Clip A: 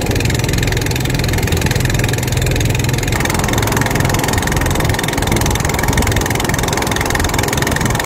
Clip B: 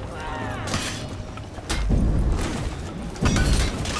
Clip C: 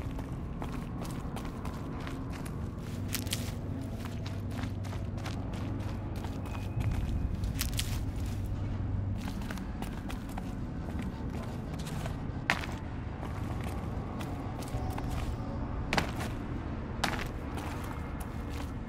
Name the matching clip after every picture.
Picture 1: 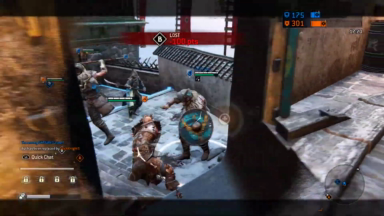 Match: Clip B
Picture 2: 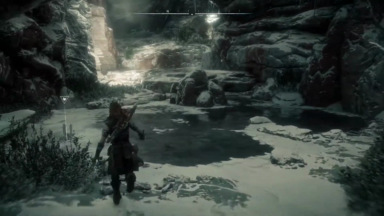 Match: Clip C